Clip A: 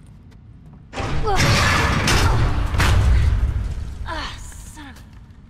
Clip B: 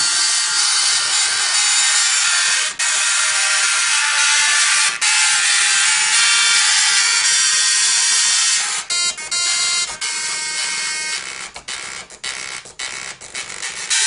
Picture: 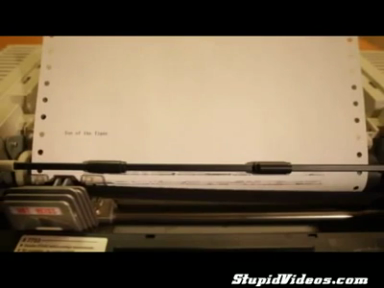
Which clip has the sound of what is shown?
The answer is B